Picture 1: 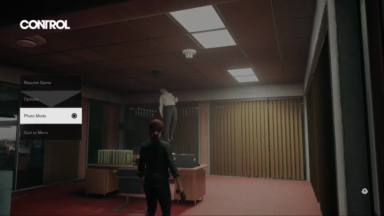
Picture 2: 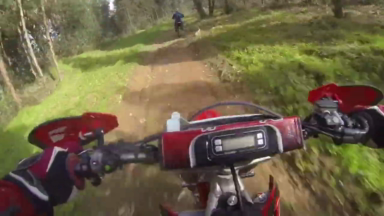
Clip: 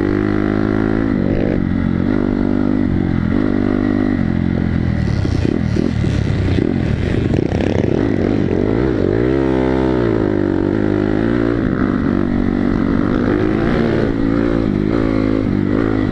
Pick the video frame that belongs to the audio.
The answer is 2